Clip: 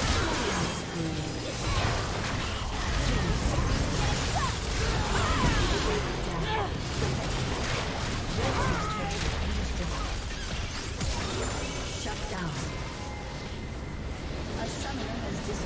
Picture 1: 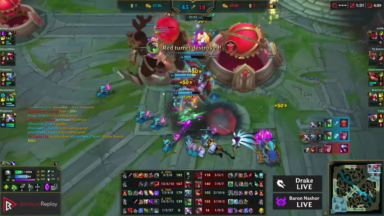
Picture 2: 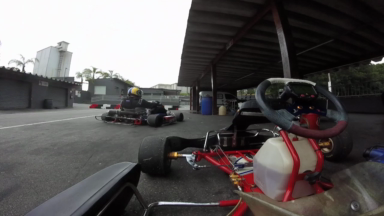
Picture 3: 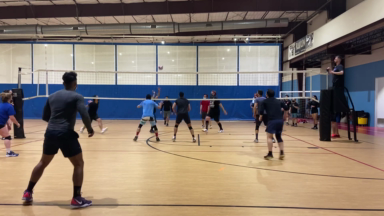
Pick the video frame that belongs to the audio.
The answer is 1